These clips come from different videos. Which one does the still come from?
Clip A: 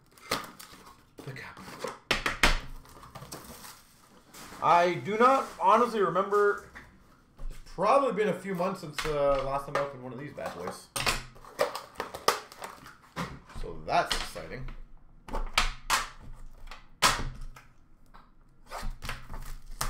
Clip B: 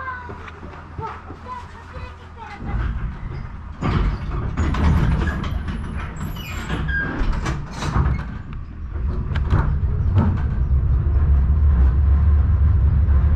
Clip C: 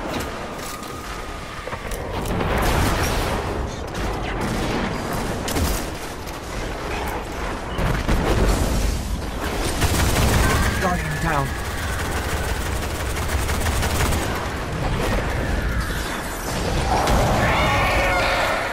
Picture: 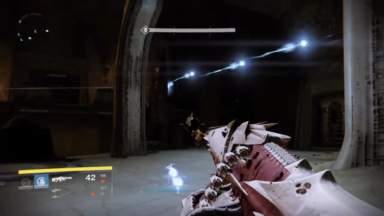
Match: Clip C